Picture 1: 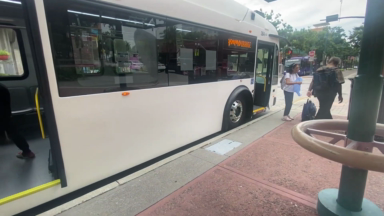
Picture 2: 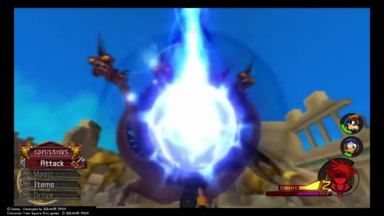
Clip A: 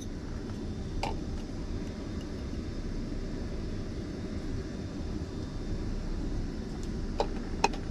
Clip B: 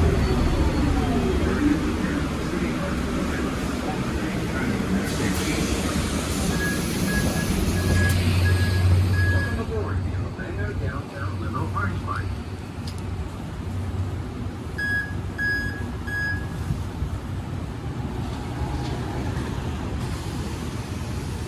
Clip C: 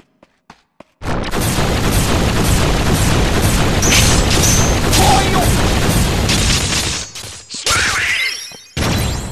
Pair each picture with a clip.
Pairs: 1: B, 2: C